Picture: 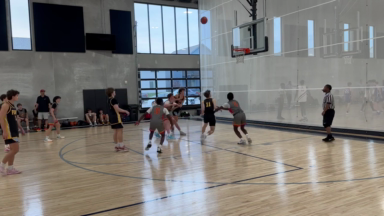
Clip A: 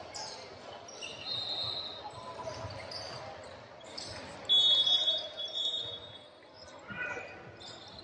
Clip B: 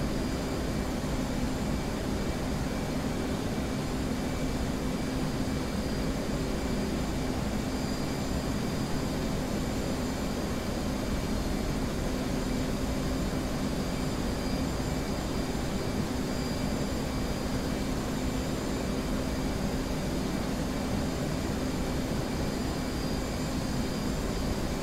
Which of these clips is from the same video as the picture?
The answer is A